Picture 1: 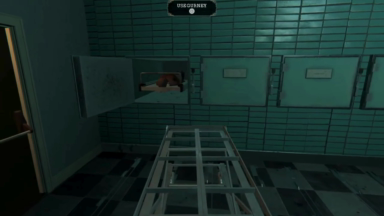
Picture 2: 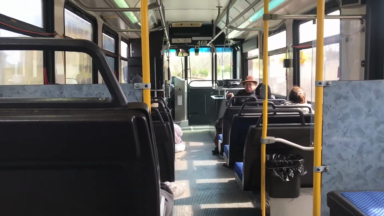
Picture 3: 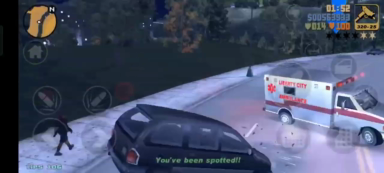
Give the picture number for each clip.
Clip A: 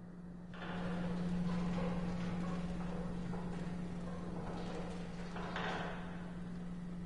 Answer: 1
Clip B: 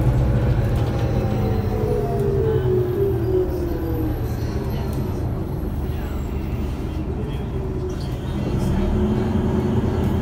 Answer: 2